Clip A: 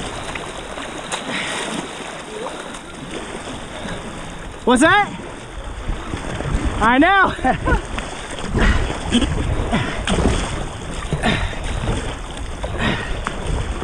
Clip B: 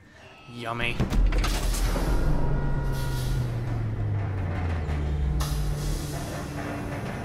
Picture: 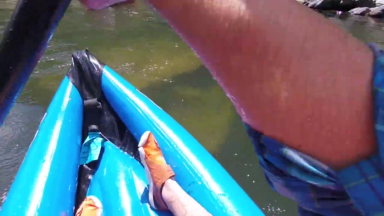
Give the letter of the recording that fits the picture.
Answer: A